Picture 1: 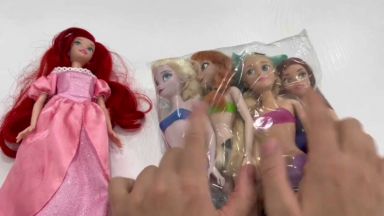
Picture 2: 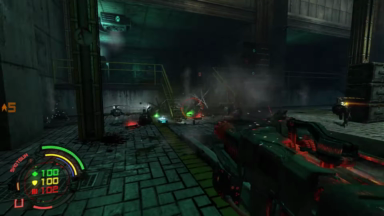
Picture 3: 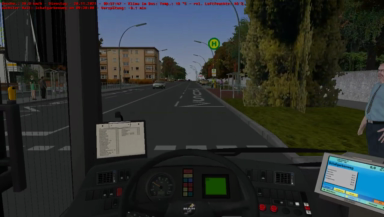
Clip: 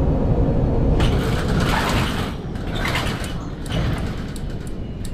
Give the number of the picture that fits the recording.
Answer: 3